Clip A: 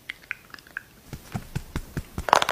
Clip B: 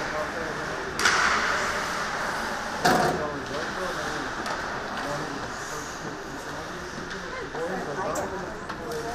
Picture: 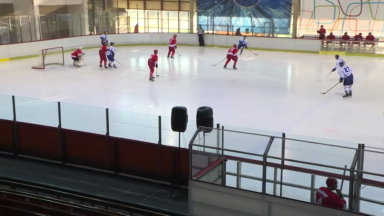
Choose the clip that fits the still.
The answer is B